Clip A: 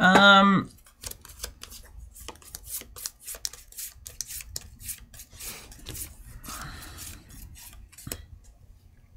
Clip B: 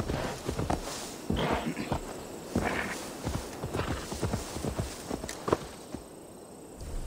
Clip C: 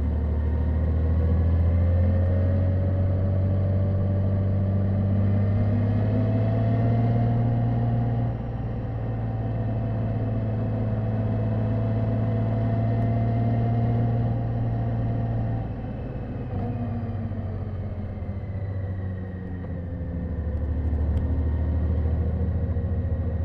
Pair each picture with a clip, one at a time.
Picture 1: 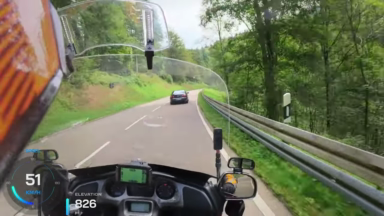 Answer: C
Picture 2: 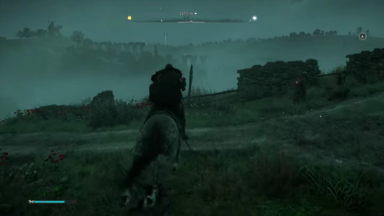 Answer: B